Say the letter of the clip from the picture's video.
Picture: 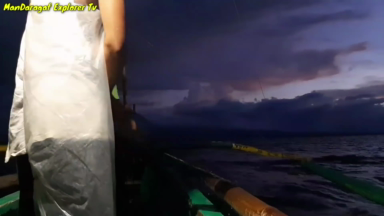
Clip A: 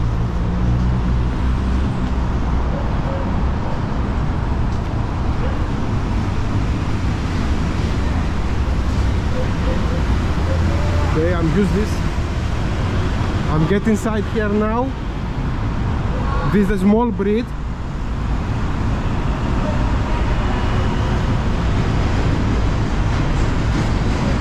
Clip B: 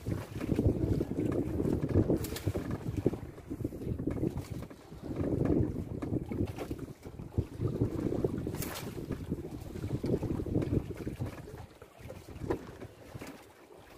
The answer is B